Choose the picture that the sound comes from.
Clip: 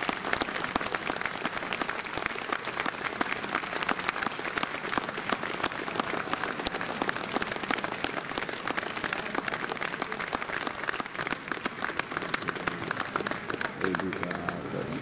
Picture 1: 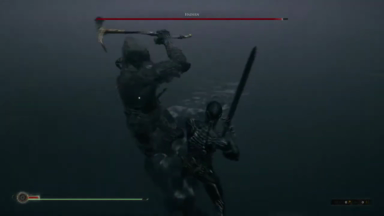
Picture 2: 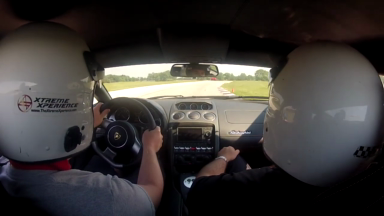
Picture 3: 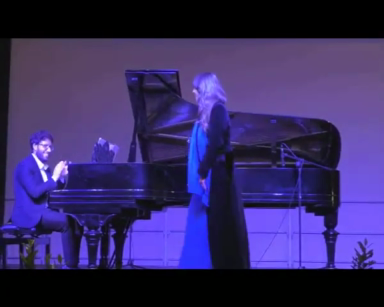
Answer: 3